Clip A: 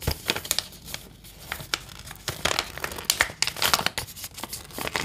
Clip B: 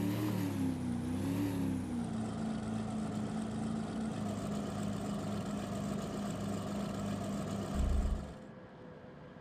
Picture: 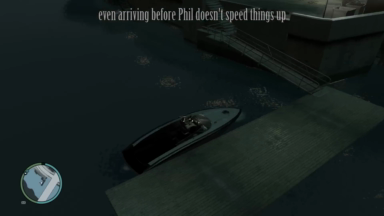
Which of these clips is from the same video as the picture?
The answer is B